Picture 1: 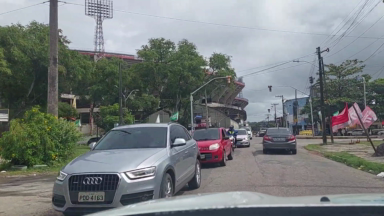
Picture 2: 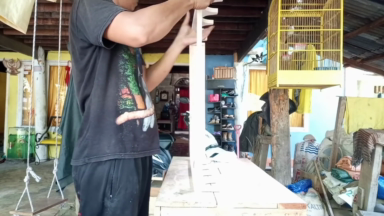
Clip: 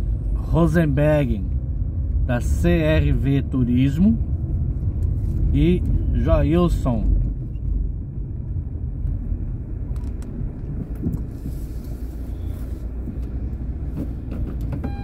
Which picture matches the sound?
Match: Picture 1